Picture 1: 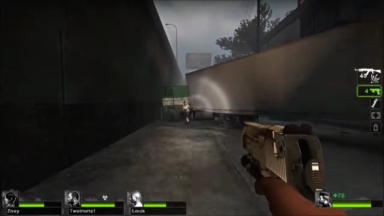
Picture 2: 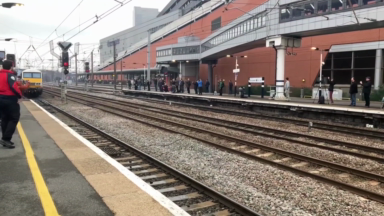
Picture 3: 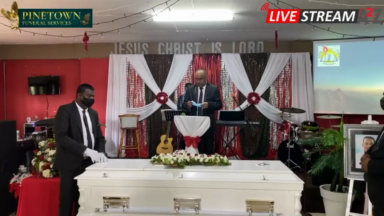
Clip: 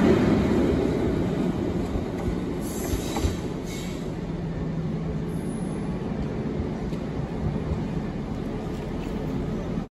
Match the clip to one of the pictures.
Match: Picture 2